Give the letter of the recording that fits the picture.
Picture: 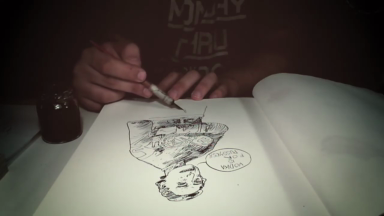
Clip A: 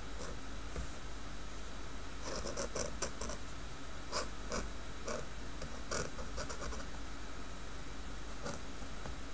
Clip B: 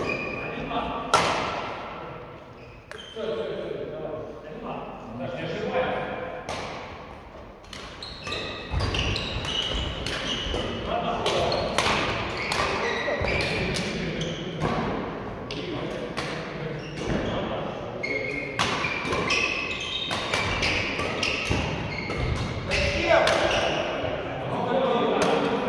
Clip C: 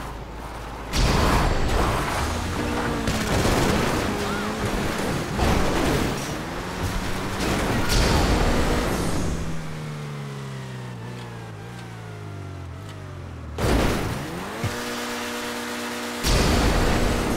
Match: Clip A